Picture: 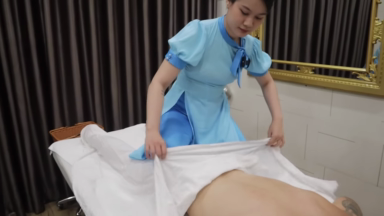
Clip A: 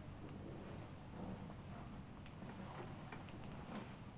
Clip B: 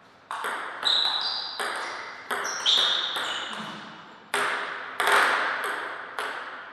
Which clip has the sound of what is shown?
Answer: A